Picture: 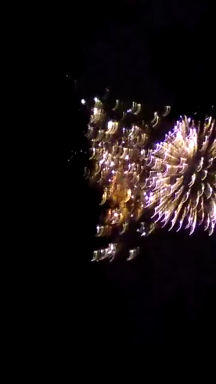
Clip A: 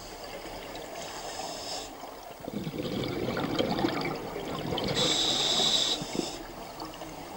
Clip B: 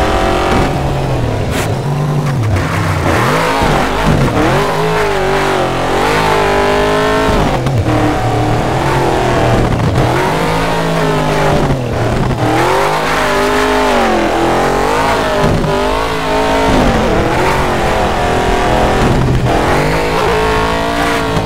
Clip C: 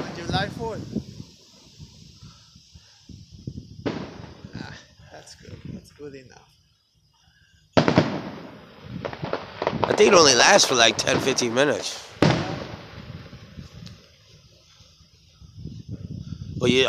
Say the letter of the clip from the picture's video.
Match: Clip C